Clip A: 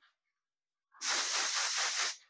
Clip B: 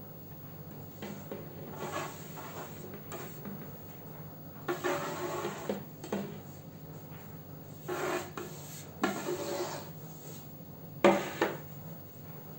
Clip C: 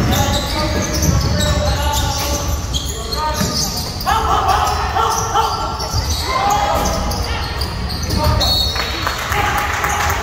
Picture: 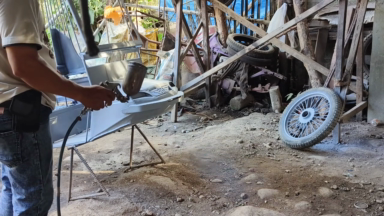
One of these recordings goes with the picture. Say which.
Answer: A